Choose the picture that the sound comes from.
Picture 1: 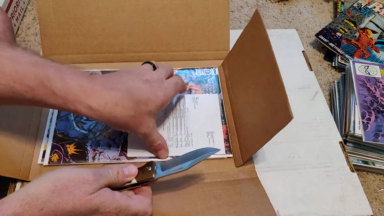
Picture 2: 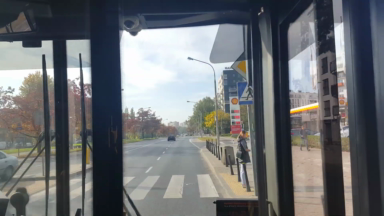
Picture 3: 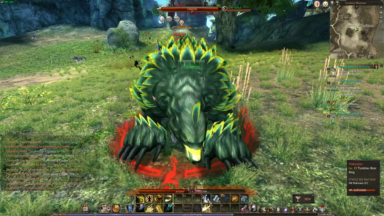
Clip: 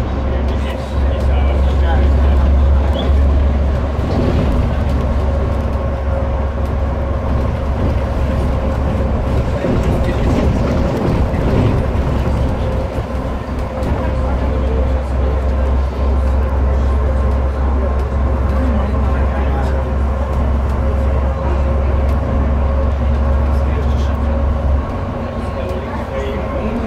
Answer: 2